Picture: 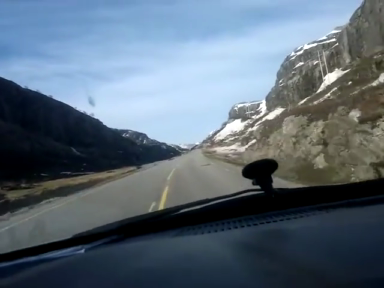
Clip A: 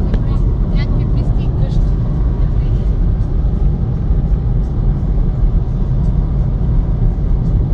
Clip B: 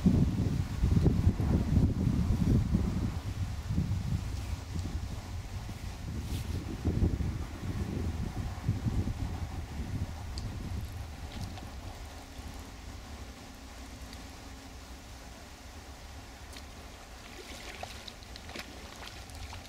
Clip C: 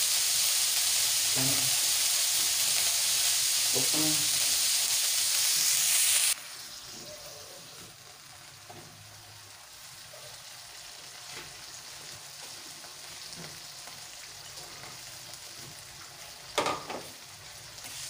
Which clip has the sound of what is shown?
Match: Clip A